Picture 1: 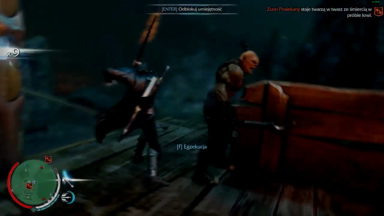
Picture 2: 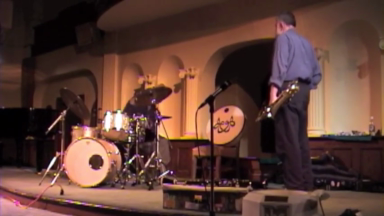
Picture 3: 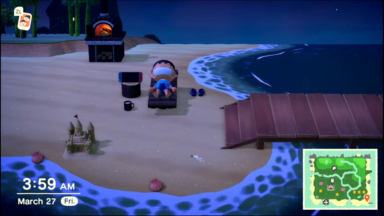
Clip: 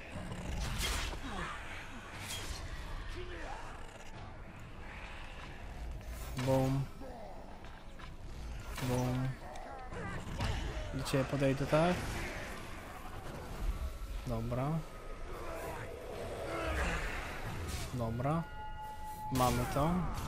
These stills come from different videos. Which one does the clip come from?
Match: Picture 1